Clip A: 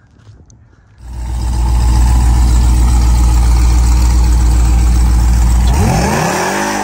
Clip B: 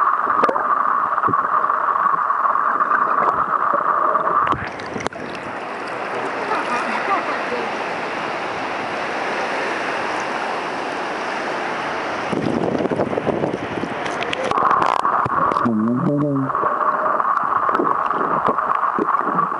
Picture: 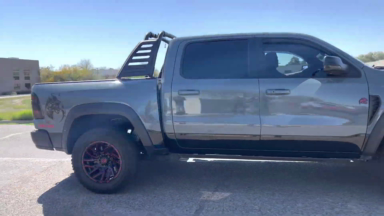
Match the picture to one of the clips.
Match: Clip A